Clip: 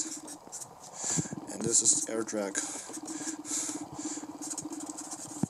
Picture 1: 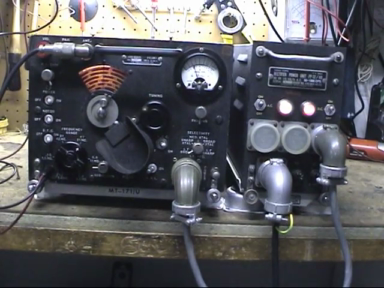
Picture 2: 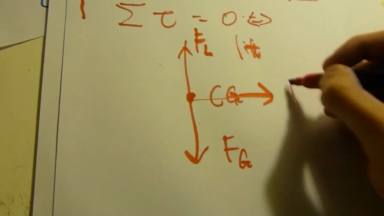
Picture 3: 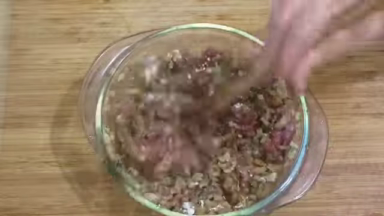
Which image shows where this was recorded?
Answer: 2